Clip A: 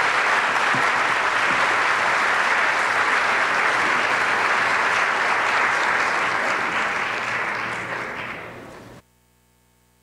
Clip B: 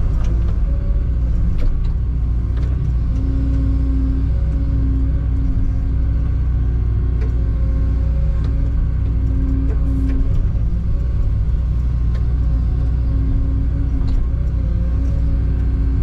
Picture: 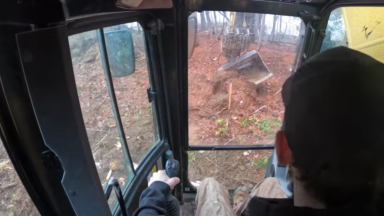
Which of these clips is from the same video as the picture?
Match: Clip B